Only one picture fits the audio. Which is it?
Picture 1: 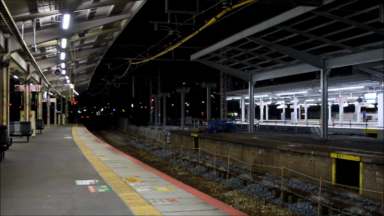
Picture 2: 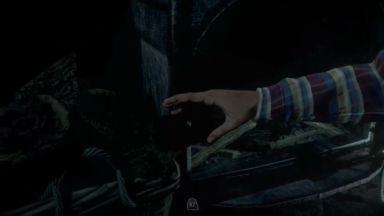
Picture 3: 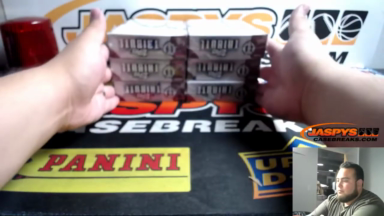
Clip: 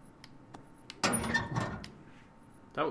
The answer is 2